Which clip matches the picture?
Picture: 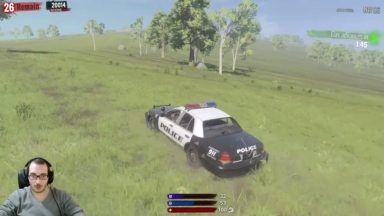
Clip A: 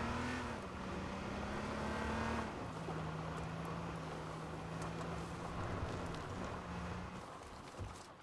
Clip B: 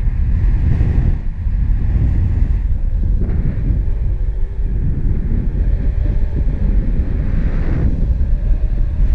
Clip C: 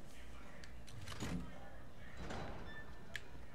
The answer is A